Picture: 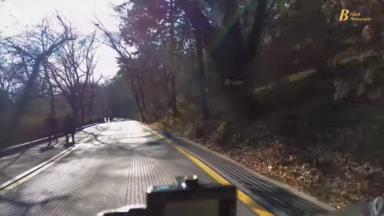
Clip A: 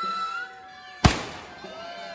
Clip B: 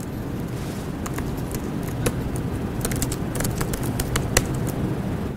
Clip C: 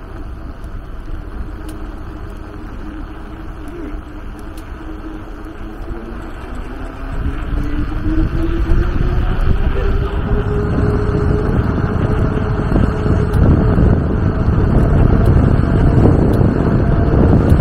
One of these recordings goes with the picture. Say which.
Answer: C